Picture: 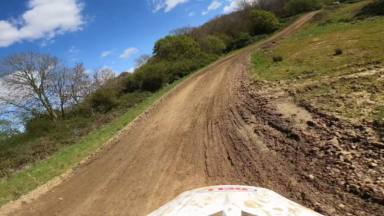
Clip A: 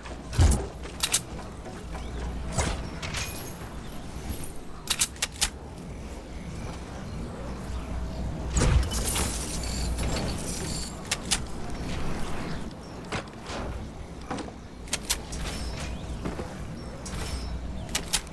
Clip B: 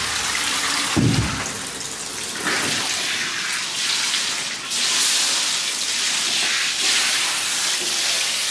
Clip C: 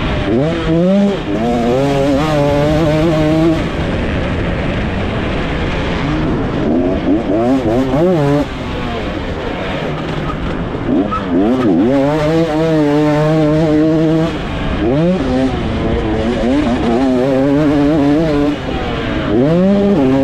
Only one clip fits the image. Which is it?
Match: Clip C